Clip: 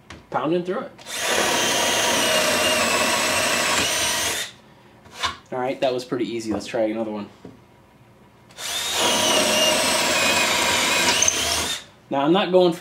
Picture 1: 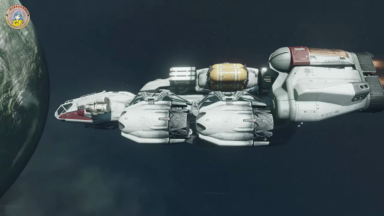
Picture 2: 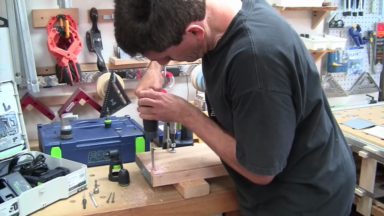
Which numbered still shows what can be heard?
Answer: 2